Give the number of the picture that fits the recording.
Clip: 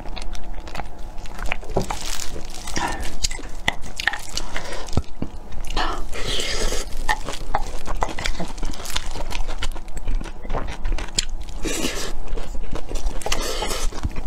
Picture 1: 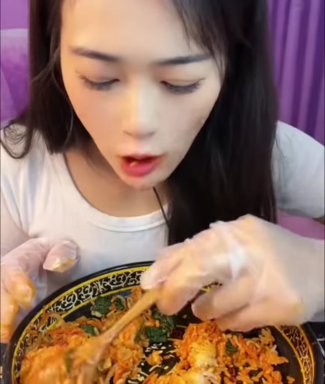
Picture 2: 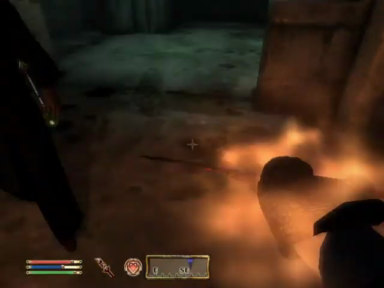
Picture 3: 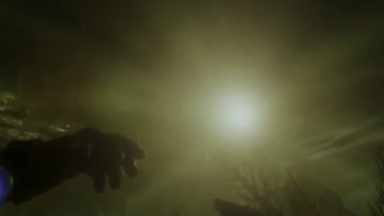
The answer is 1